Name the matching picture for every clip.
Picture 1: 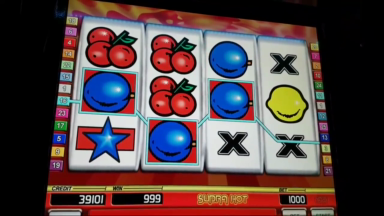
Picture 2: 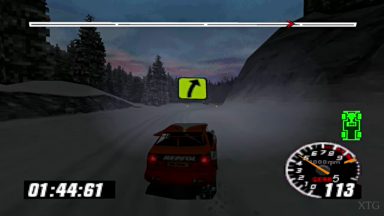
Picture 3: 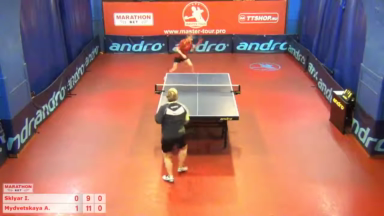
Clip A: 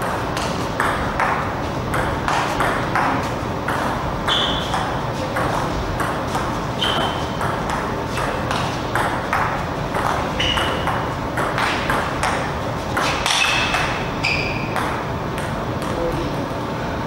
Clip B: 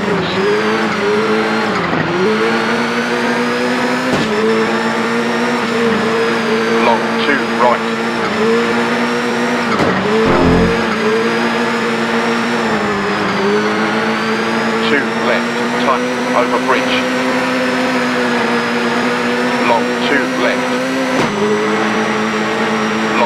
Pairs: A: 3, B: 2